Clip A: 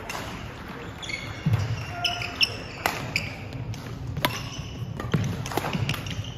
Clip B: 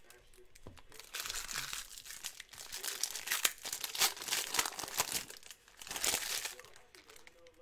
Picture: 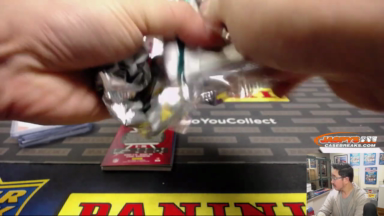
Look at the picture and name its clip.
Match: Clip B